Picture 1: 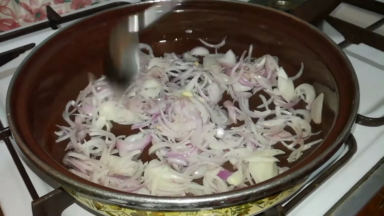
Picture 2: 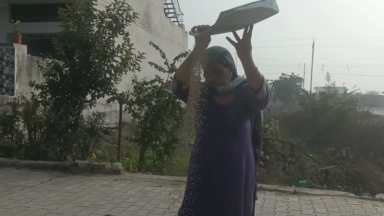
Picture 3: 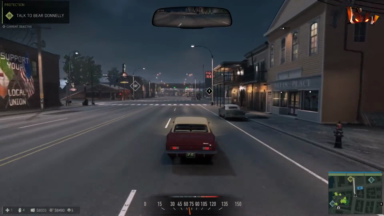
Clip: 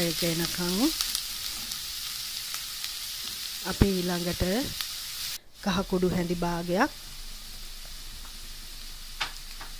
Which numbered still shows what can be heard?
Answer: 1